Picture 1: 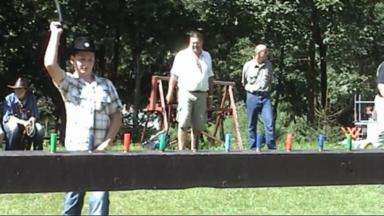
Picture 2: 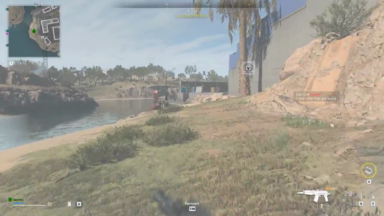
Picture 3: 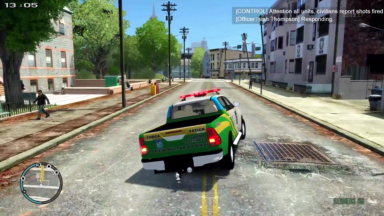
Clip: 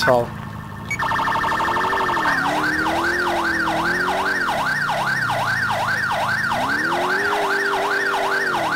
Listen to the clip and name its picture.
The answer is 3